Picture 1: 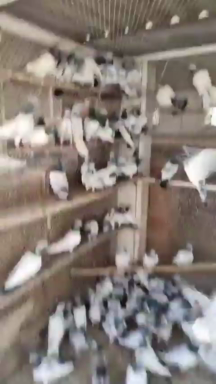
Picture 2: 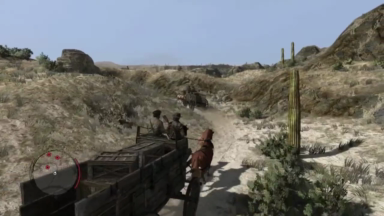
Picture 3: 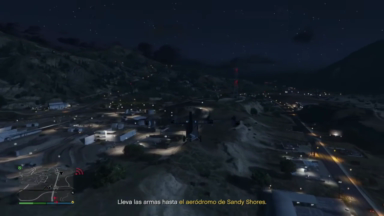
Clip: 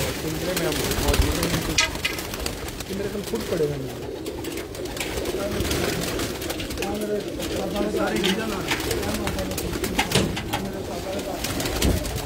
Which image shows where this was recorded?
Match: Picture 1